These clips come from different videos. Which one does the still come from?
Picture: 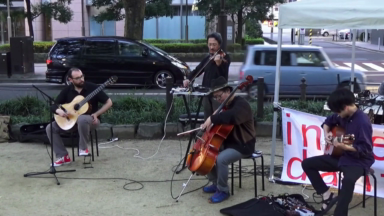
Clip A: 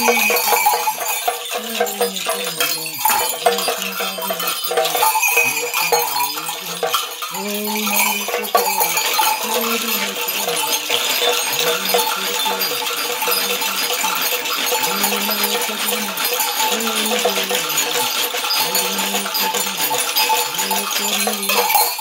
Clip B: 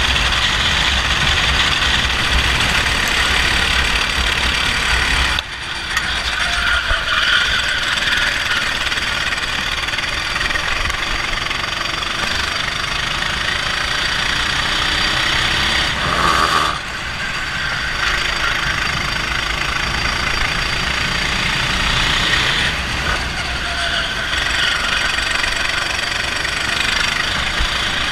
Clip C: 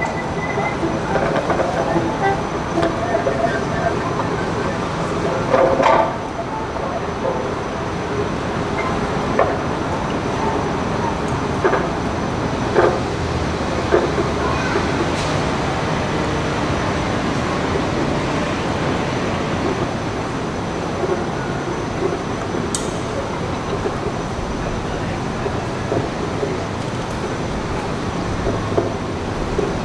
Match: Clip C